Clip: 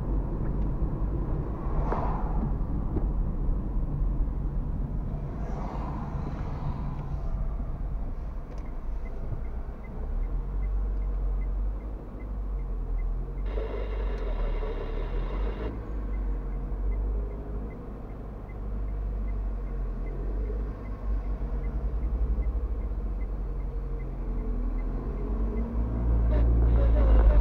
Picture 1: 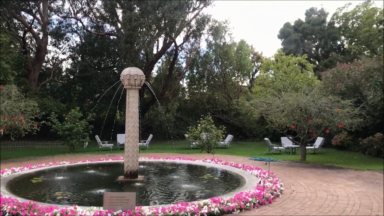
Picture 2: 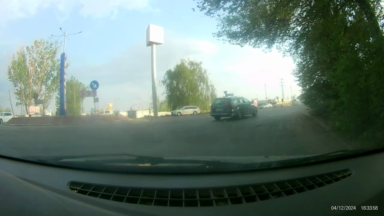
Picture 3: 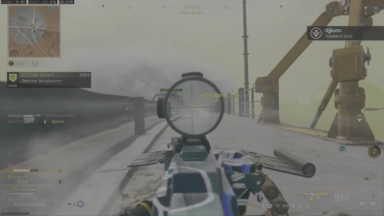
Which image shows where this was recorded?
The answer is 2